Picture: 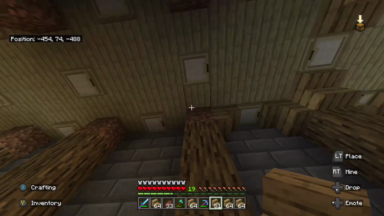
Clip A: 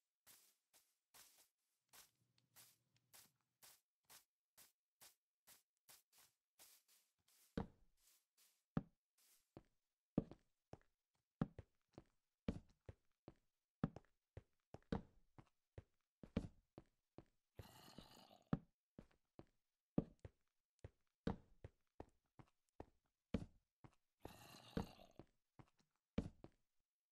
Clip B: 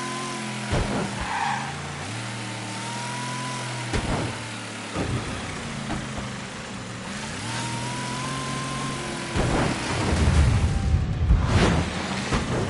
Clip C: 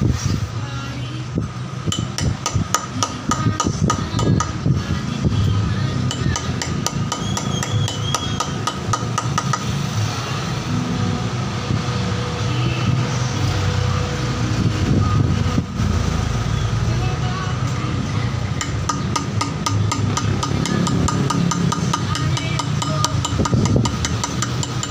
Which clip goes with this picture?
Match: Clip A